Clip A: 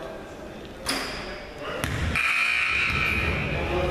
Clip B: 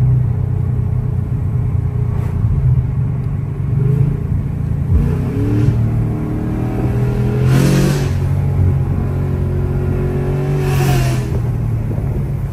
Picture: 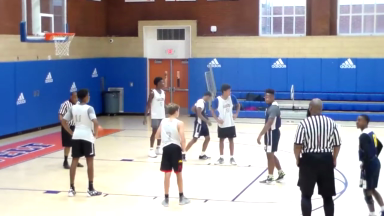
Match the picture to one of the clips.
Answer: A